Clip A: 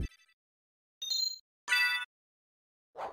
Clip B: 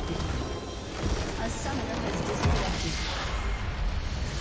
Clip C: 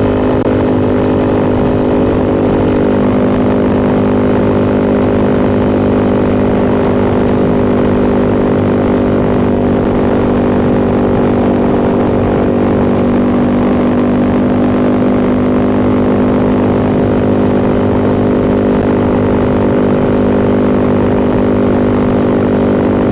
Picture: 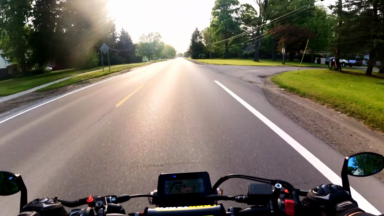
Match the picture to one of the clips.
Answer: C